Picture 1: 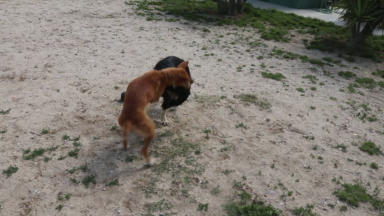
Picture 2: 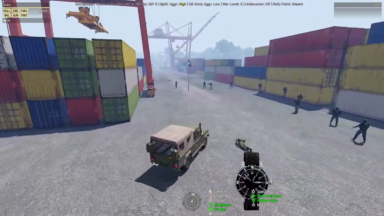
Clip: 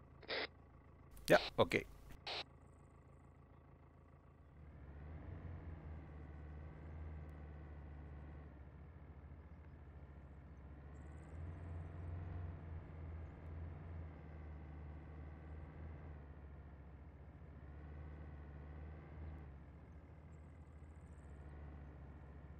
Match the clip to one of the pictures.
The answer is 2